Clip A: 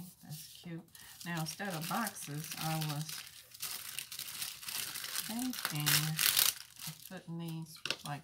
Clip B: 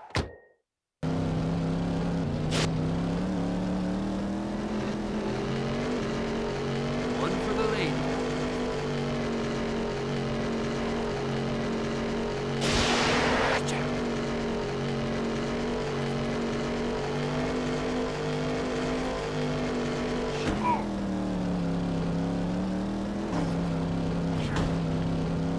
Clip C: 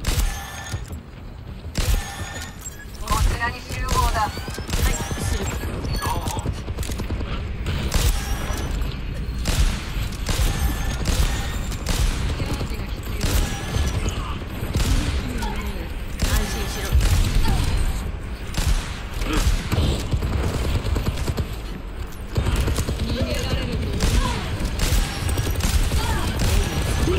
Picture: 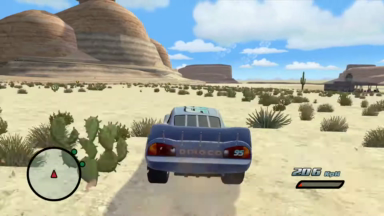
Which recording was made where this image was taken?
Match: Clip B